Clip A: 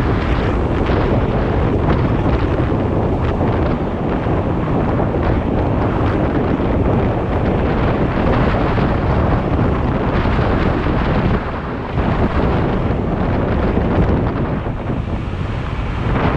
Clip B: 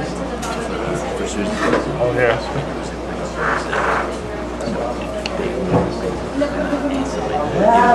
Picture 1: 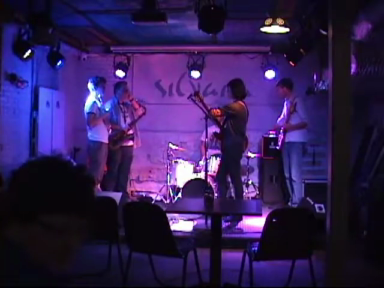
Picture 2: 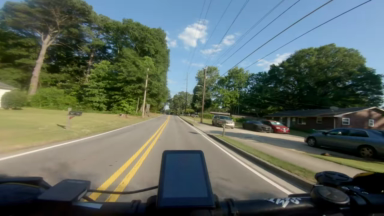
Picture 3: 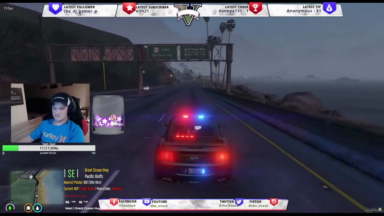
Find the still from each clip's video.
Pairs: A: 2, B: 1